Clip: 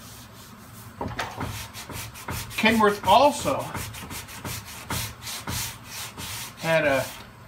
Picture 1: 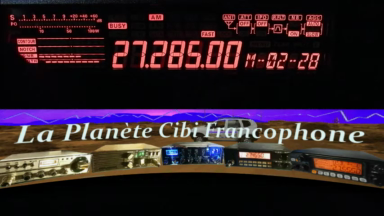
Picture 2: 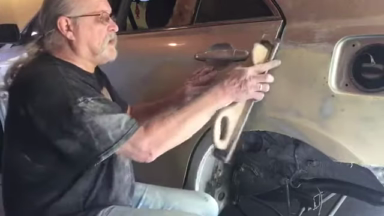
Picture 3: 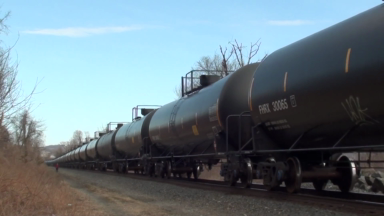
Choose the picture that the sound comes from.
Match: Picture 2